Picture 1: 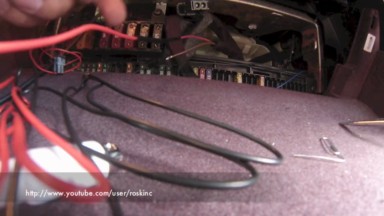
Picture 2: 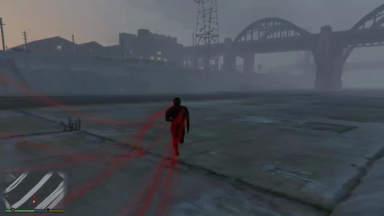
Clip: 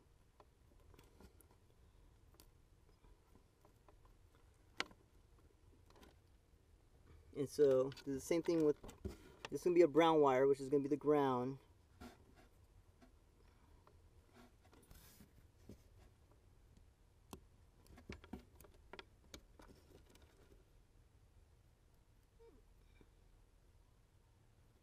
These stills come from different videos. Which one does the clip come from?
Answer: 1